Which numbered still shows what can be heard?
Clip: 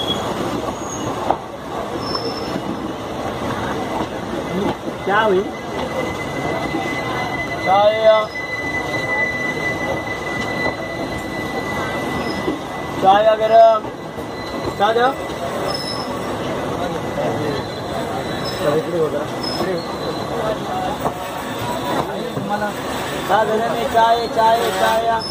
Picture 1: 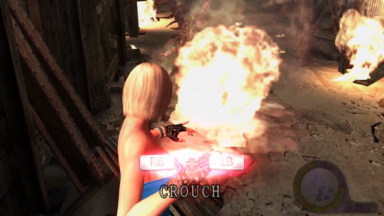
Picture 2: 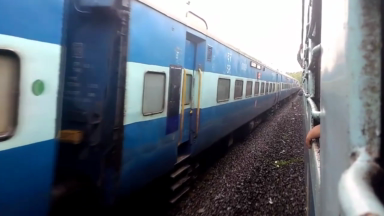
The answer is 2